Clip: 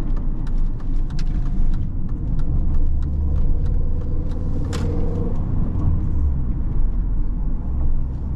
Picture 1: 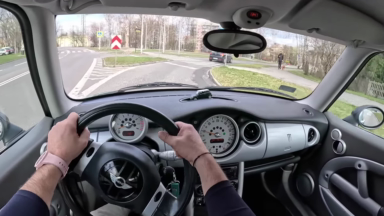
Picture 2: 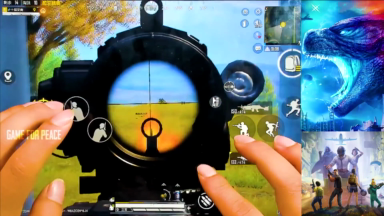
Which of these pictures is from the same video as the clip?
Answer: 1